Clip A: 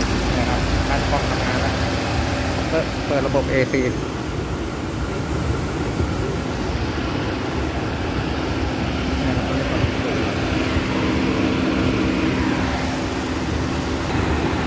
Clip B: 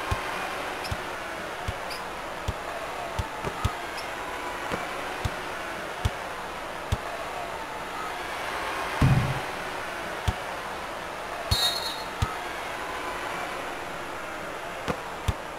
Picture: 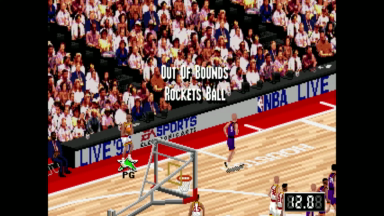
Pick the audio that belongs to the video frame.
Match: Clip B